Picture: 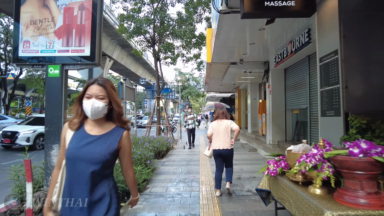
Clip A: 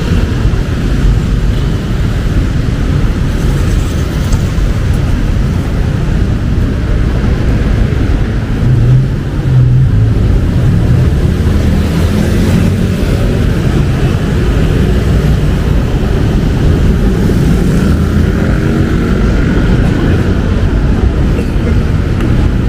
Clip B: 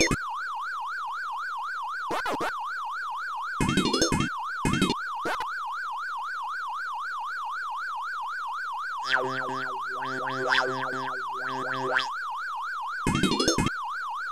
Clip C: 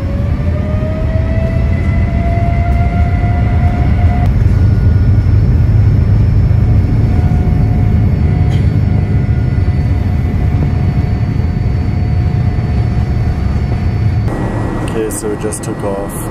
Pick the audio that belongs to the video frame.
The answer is A